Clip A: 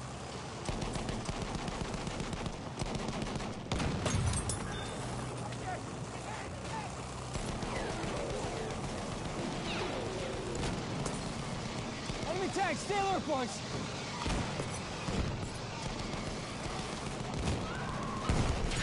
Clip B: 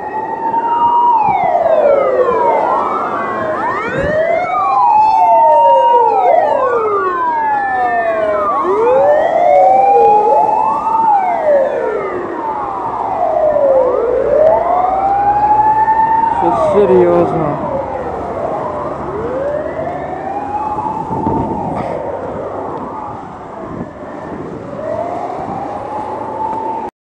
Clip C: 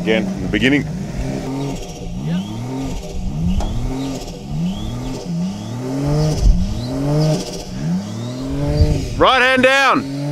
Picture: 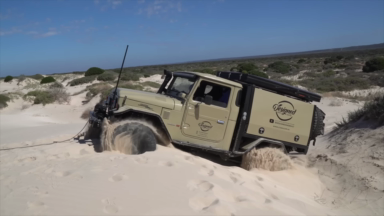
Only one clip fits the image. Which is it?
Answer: C